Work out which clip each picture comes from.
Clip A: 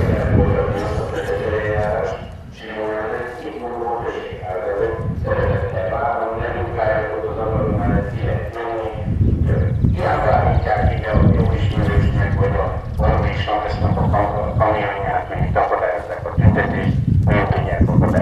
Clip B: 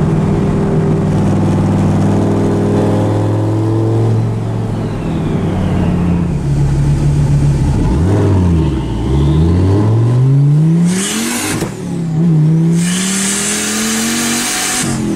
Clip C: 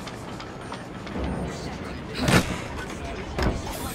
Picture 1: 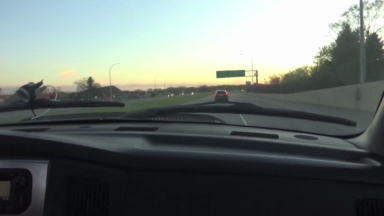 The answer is B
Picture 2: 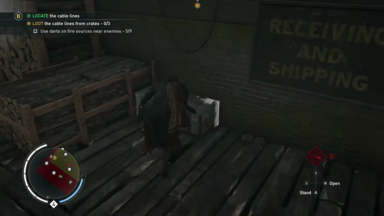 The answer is C